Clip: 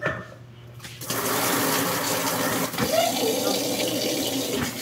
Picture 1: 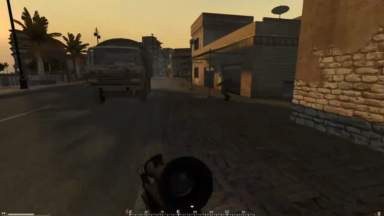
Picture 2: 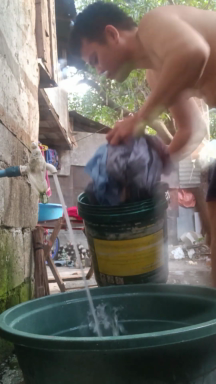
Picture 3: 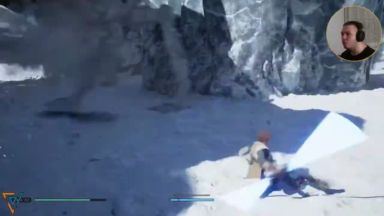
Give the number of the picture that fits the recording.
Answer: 2